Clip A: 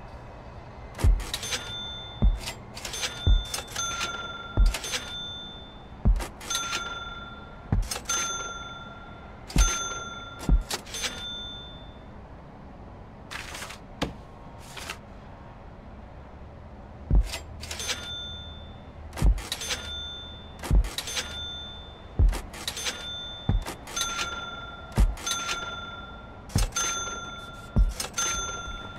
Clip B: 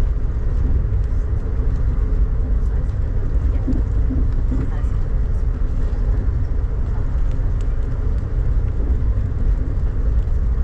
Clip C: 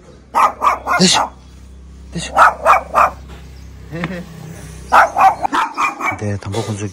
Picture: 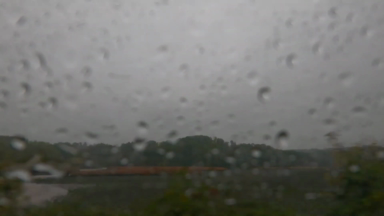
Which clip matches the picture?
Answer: B